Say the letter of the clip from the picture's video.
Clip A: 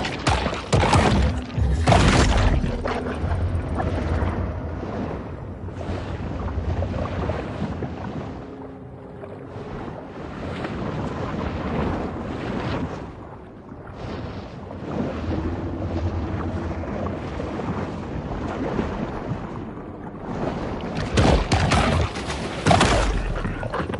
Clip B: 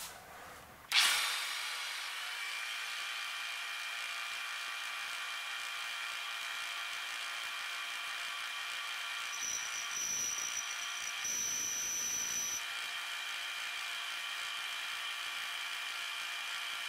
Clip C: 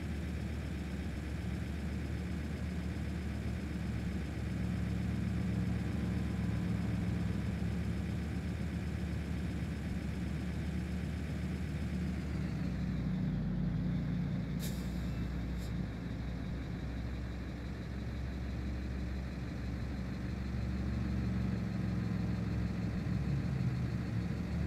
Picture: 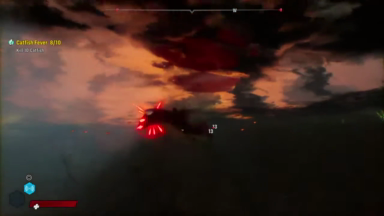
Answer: A